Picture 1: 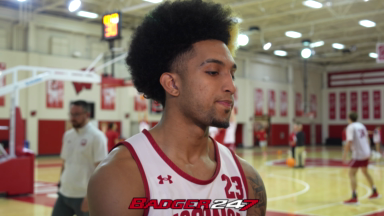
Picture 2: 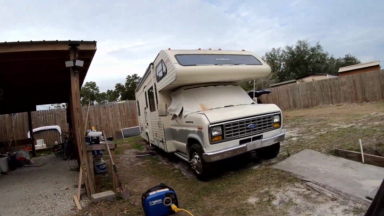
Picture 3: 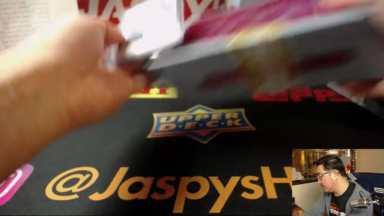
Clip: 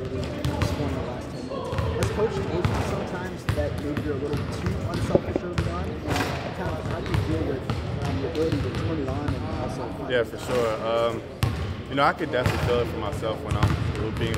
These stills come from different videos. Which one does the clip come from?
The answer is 1